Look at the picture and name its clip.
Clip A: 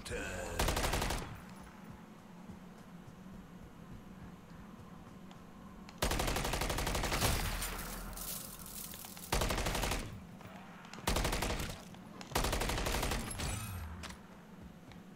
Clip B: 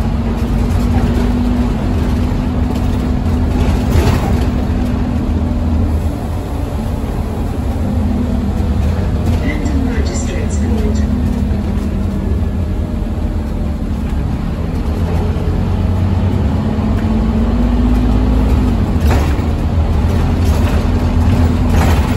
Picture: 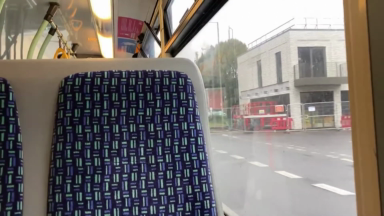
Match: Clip B